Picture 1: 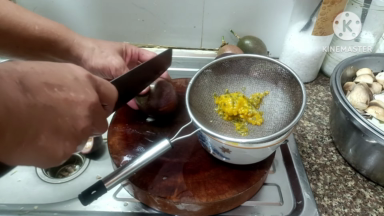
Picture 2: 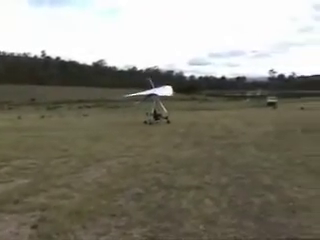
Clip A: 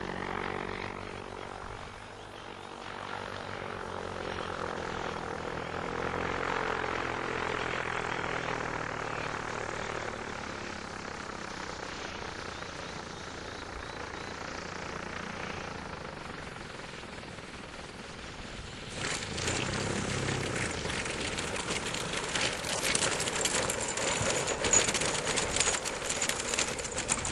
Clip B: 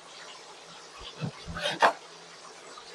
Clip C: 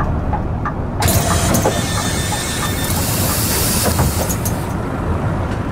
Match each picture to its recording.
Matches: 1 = B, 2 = A